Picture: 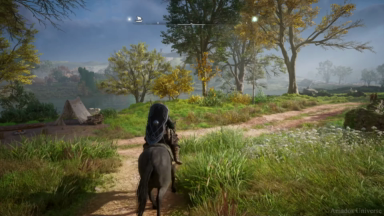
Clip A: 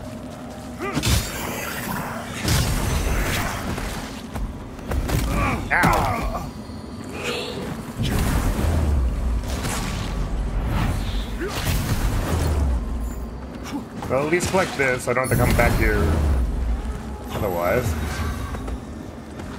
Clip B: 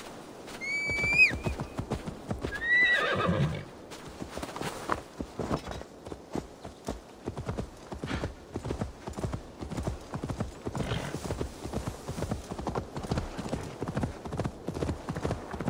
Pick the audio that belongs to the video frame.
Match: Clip B